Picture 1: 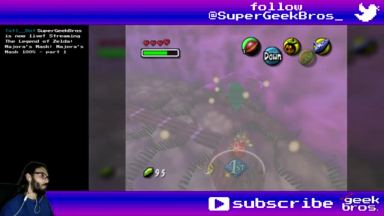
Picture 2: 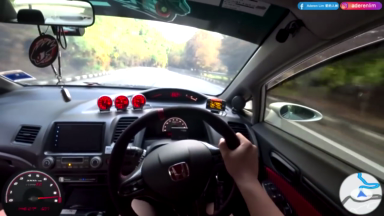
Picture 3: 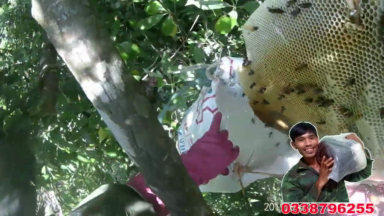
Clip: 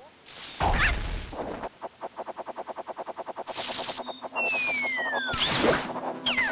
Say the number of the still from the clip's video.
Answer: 1